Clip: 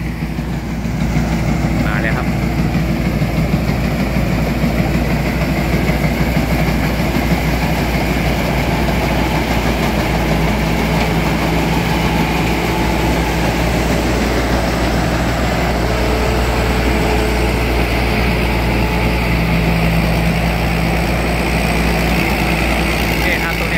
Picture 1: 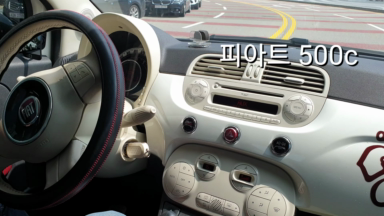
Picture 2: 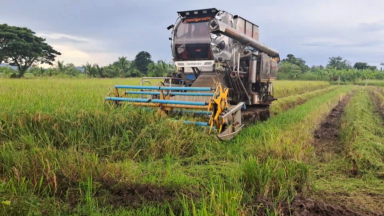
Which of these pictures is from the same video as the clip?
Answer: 2